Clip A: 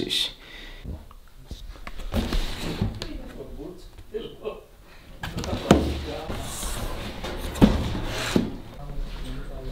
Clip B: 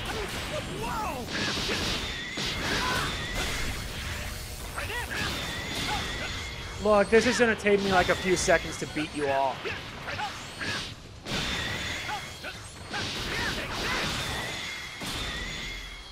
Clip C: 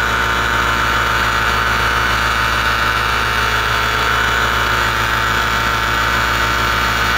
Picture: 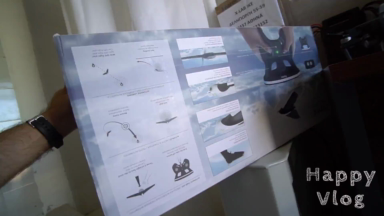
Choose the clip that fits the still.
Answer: A